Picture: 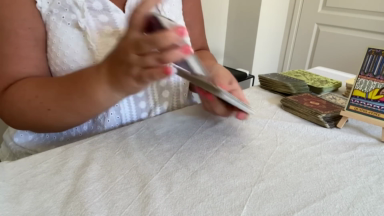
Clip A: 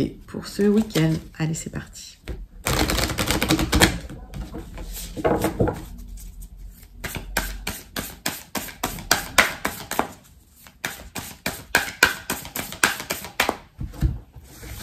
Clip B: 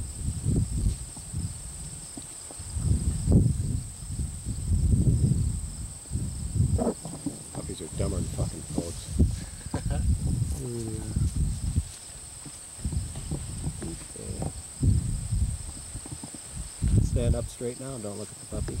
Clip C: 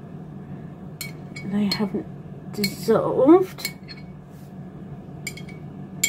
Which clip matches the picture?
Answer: A